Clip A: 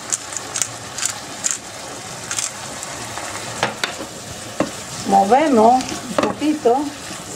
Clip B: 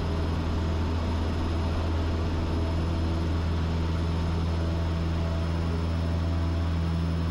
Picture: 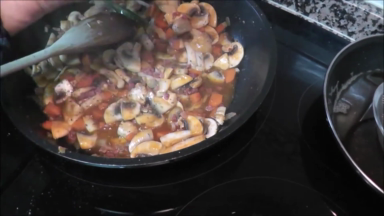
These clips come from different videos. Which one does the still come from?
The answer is A